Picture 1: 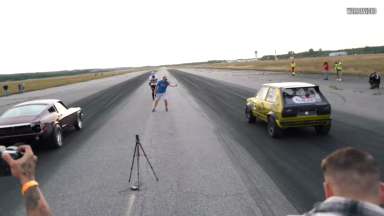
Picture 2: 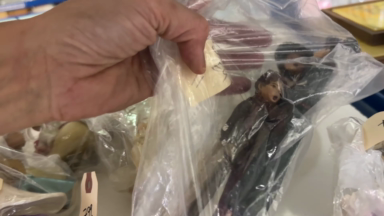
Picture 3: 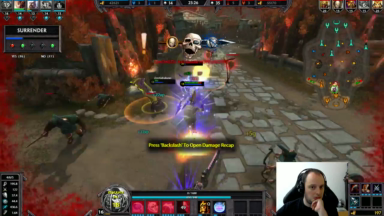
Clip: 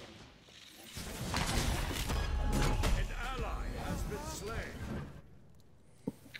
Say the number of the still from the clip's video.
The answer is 3